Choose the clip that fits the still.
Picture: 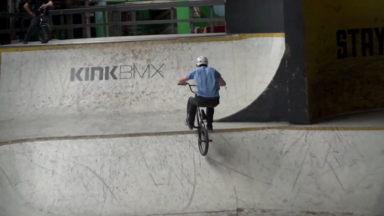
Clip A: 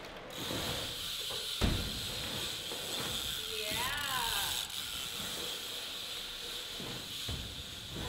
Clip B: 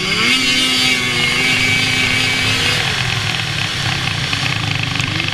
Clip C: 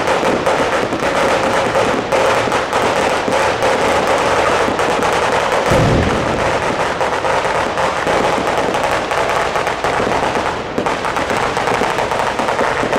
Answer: A